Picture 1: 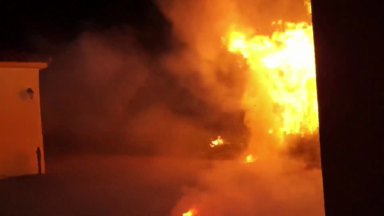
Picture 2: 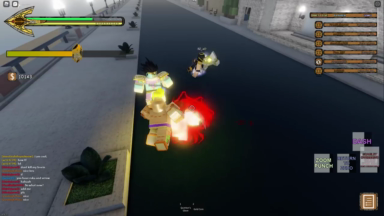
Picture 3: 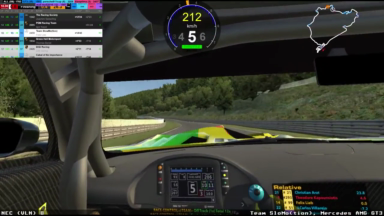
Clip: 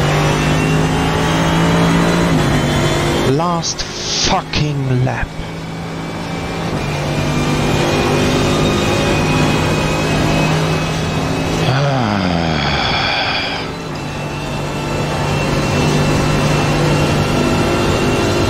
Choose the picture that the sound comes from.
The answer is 3